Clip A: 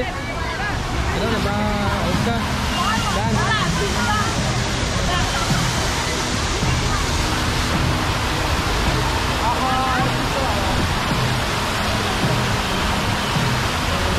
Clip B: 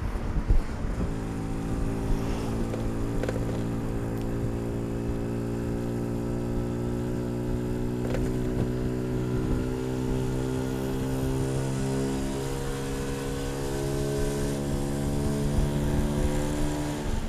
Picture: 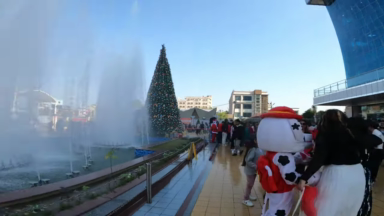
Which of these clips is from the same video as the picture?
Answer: A